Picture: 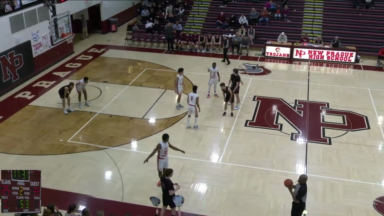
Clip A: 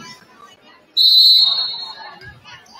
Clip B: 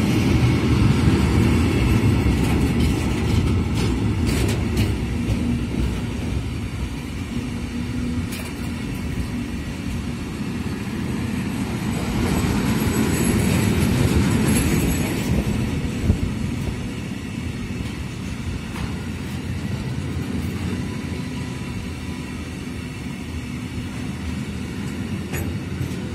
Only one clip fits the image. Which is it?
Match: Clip A